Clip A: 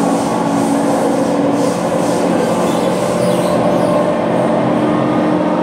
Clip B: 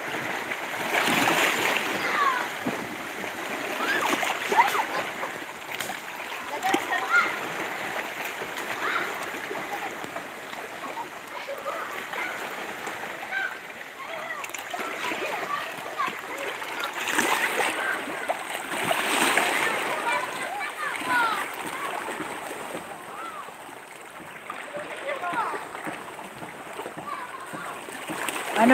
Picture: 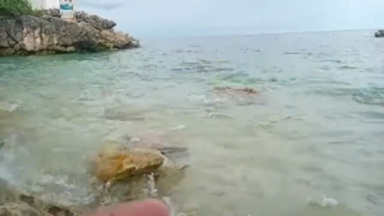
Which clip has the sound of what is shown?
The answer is B